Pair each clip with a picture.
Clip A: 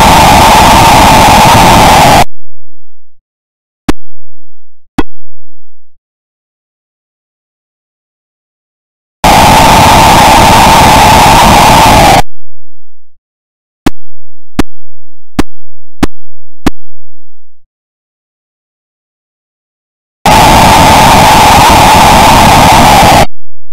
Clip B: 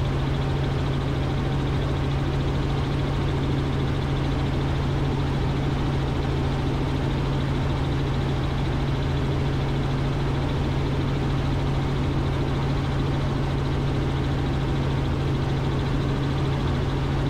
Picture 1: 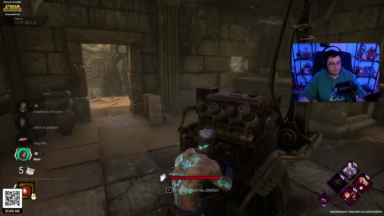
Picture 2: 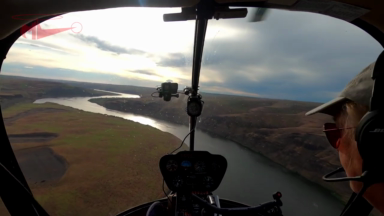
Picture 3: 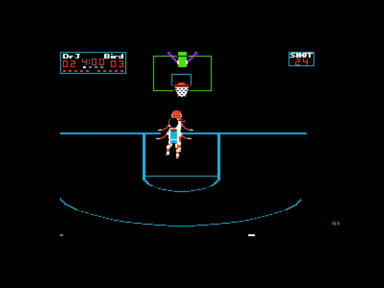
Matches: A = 3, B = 2